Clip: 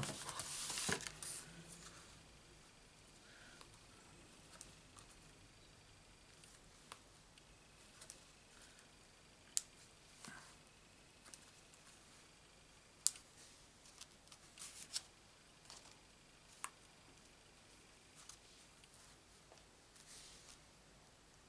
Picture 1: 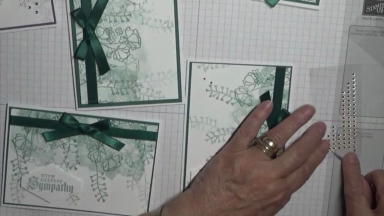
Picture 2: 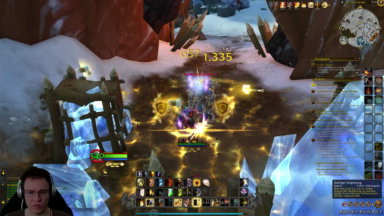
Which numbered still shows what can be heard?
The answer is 1